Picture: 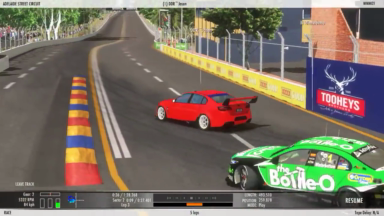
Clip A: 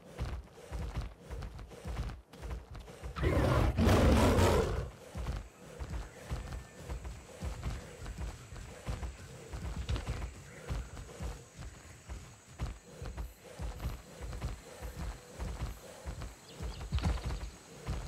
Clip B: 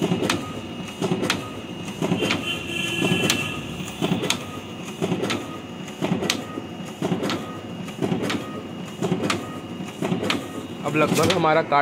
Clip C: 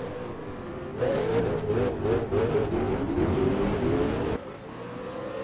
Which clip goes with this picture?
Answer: C